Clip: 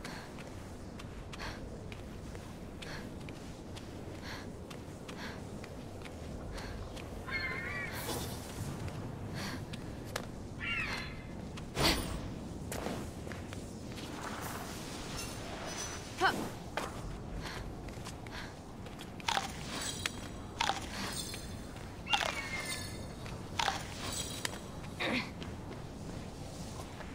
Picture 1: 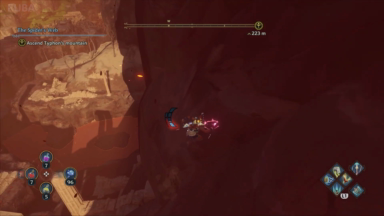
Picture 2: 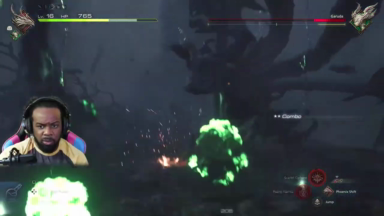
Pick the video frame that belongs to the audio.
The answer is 1